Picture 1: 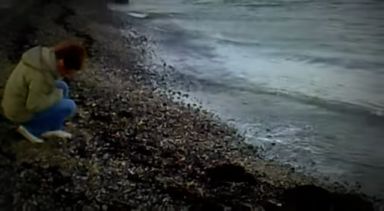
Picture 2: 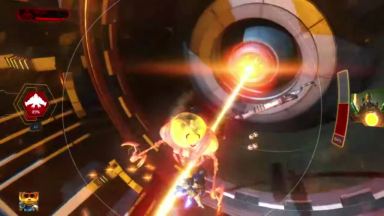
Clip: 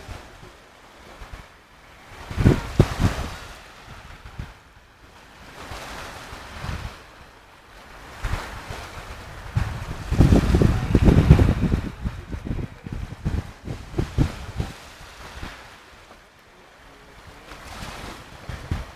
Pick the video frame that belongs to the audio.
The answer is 1